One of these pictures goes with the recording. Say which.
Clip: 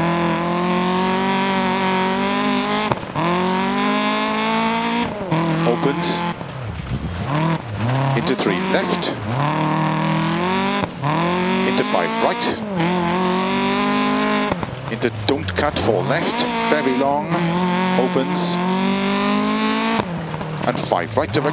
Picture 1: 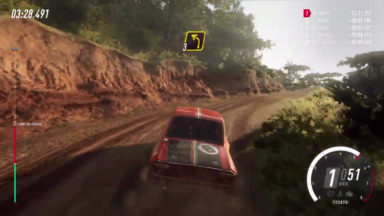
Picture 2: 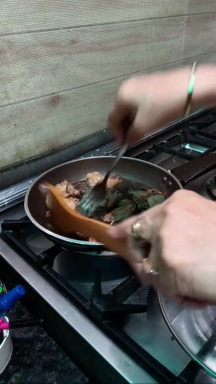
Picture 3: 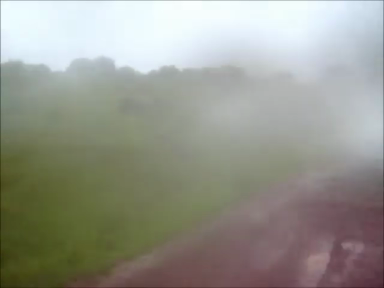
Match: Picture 1